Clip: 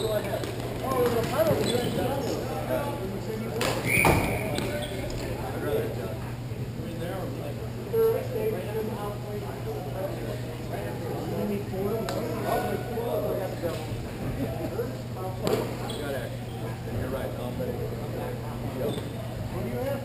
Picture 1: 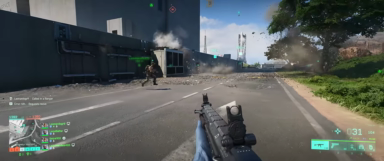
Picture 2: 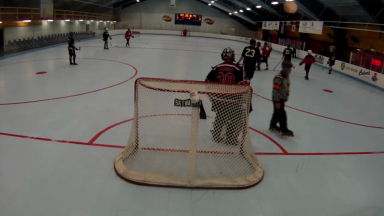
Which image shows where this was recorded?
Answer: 2